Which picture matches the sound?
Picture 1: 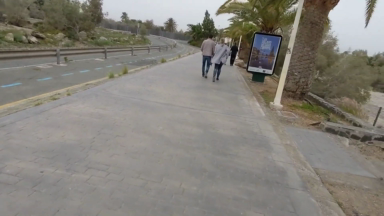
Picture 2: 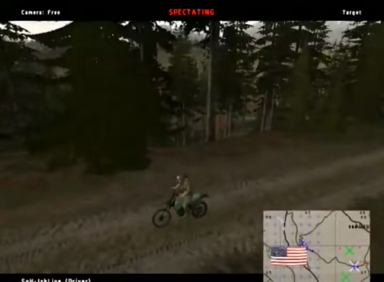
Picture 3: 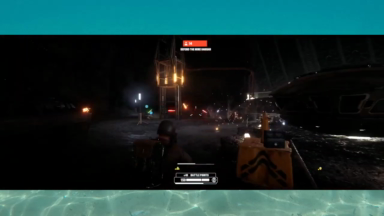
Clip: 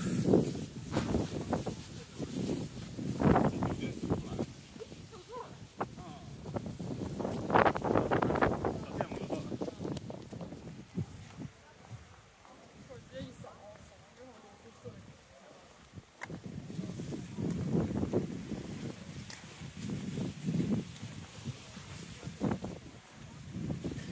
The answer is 1